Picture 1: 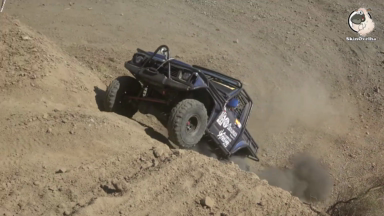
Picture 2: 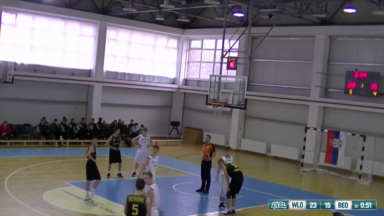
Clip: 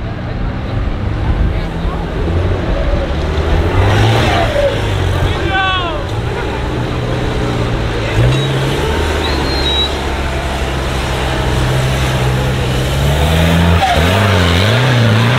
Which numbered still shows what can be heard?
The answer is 1